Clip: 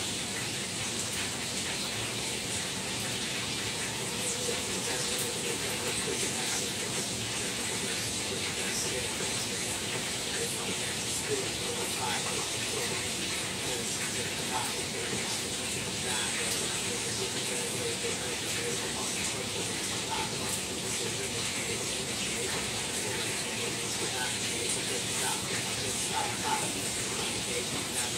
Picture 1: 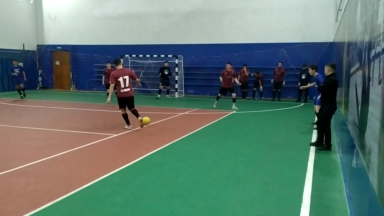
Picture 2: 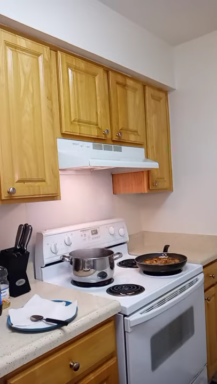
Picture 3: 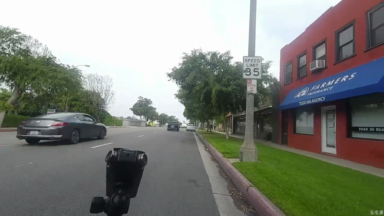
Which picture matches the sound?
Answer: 2